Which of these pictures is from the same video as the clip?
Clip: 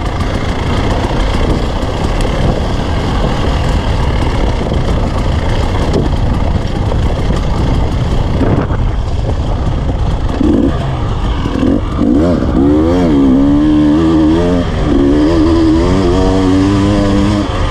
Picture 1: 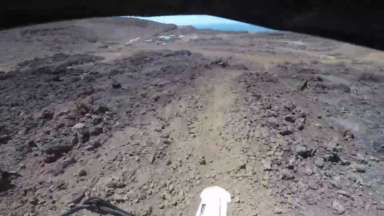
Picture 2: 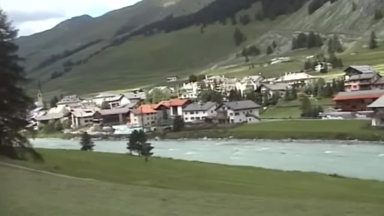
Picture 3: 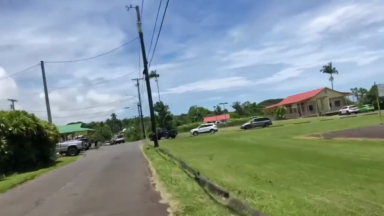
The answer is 1